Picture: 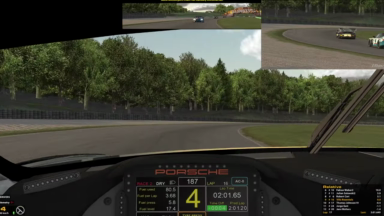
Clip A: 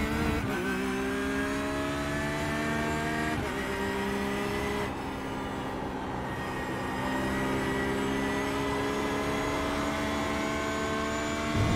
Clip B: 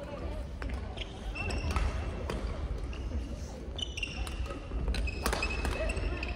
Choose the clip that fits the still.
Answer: A